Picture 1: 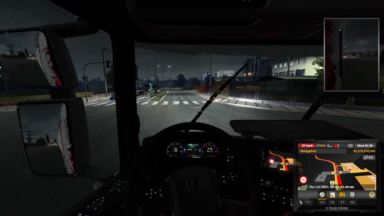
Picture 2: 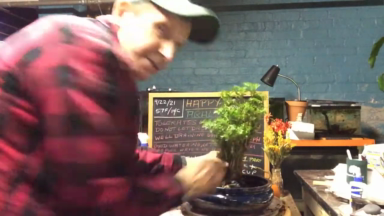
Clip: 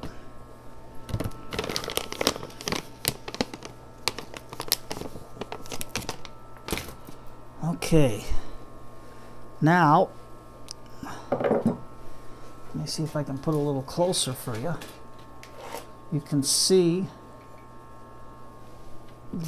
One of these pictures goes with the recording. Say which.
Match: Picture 2